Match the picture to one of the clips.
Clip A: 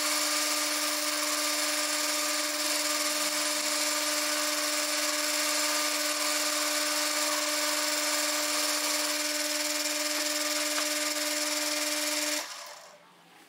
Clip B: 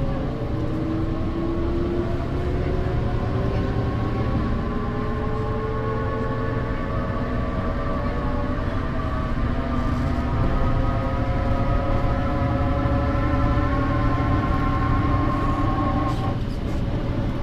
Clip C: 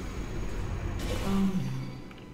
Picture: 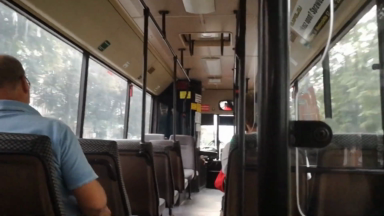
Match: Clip B